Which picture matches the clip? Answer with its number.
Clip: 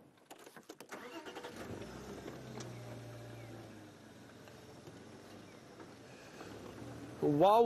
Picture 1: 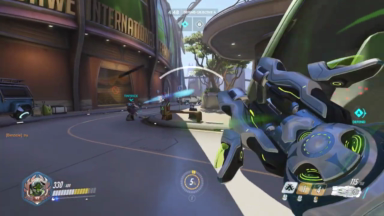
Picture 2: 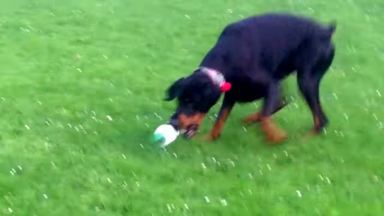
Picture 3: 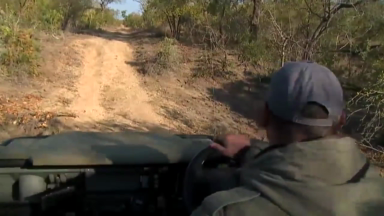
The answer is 3